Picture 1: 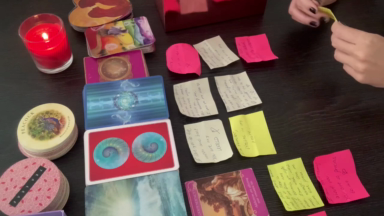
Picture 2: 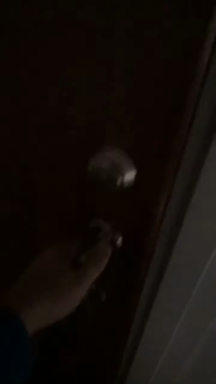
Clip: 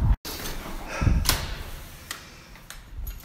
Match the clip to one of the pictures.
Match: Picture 2